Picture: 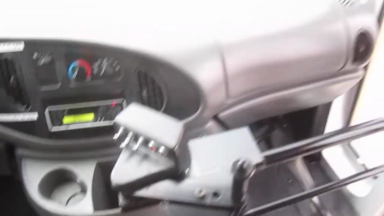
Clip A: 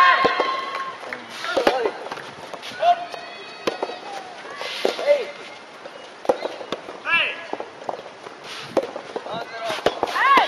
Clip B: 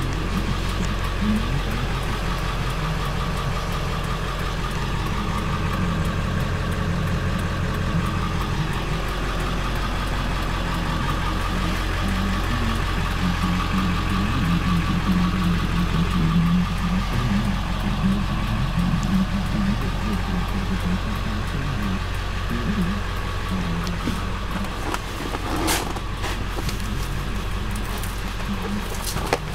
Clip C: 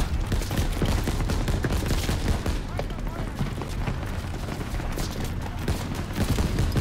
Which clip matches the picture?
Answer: B